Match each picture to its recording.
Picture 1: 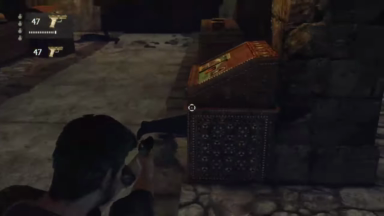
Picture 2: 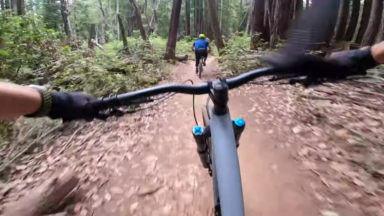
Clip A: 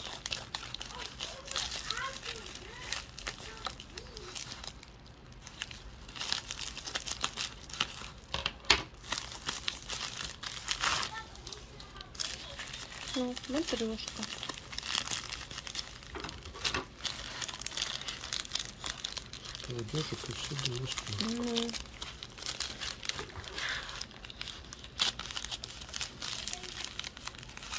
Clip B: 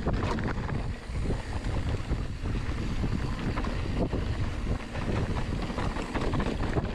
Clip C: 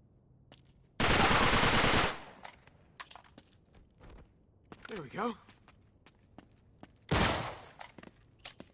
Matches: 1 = C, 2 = B